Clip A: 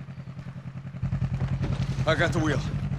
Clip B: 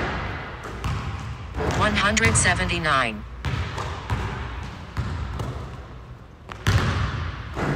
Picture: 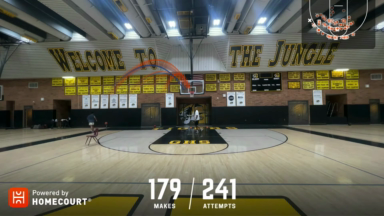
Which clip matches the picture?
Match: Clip B